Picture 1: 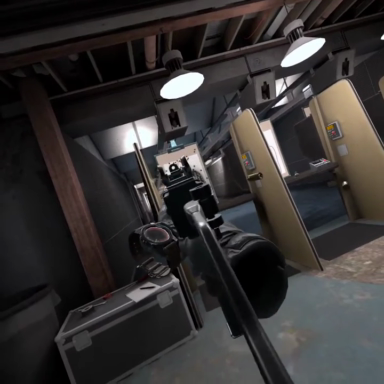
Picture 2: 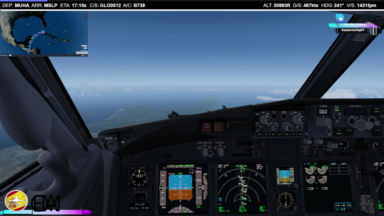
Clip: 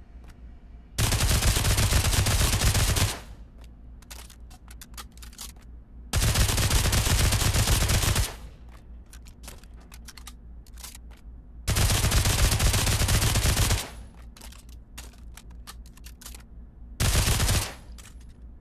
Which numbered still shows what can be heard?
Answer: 1